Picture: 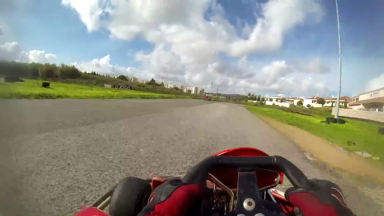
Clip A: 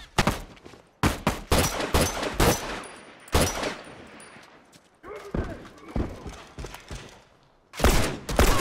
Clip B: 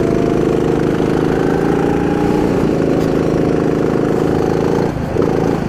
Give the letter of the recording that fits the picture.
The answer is B